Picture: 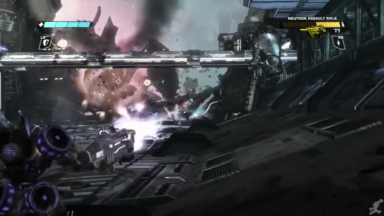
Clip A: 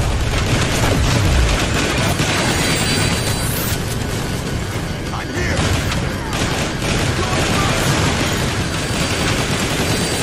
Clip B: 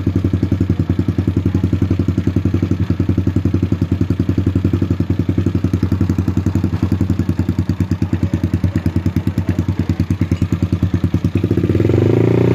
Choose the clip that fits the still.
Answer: A